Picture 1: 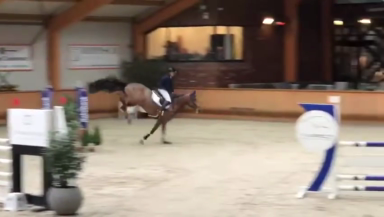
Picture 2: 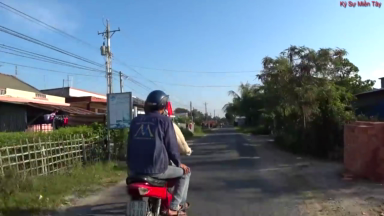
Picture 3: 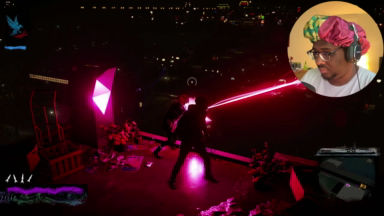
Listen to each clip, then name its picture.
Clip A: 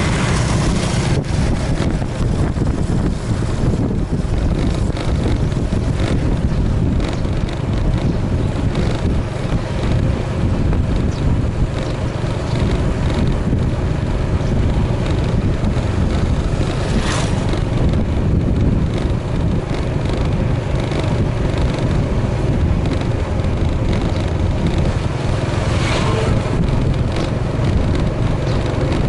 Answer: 2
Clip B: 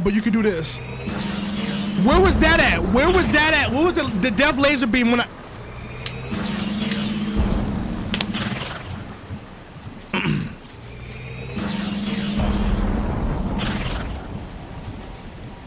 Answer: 3